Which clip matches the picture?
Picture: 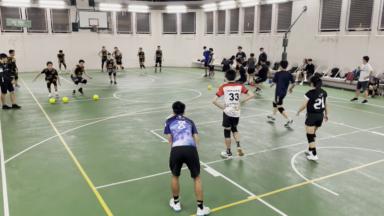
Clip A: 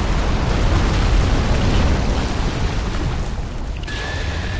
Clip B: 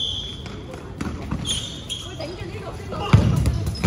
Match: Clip B